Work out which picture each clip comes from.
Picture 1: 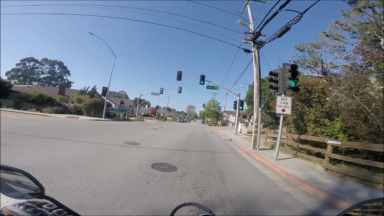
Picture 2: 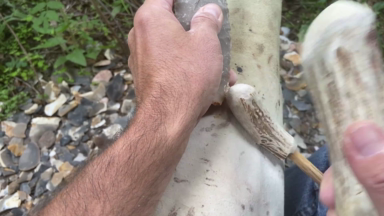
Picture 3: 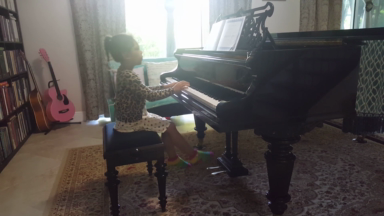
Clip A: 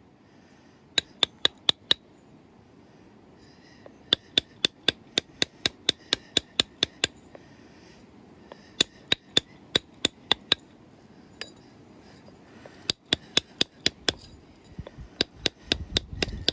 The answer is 2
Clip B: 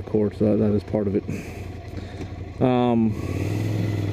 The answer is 1